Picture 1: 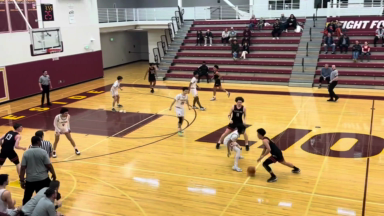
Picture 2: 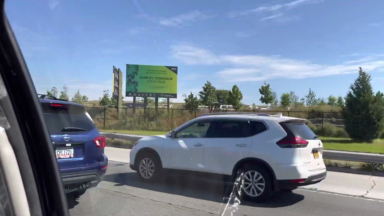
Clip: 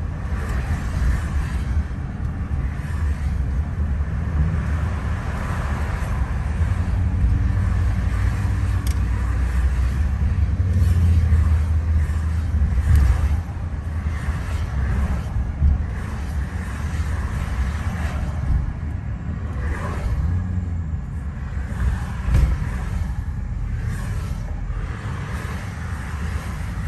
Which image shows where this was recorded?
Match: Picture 2